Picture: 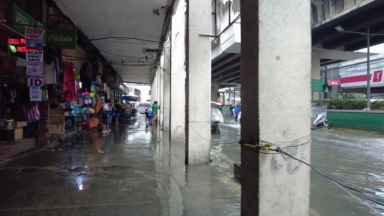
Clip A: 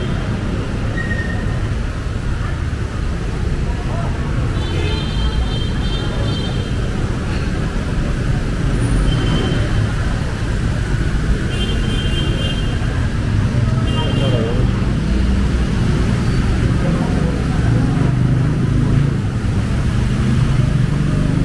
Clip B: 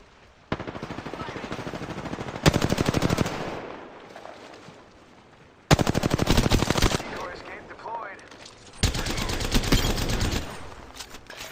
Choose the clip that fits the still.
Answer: A